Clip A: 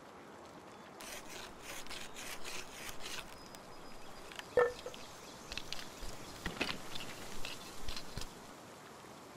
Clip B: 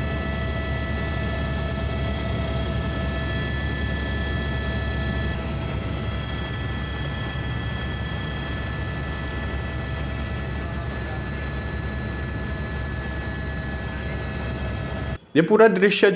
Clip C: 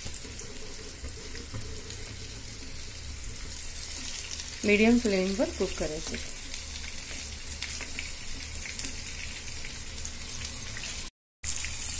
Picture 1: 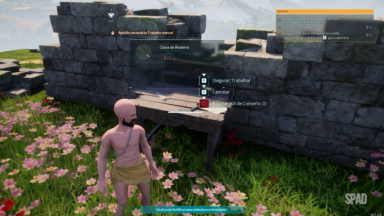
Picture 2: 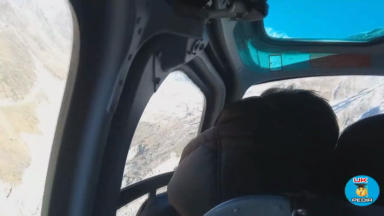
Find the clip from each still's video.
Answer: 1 A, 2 B